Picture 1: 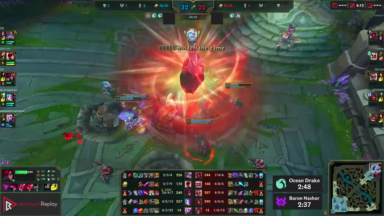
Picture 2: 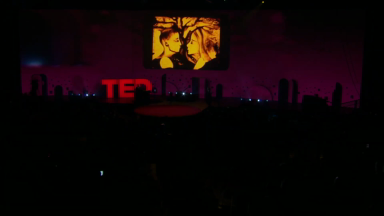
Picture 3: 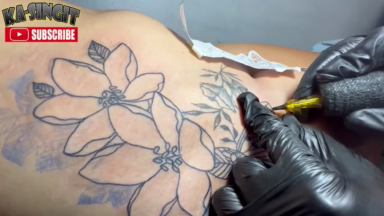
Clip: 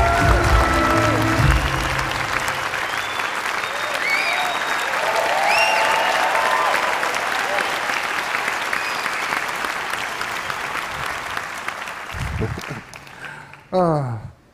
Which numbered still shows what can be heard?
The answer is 2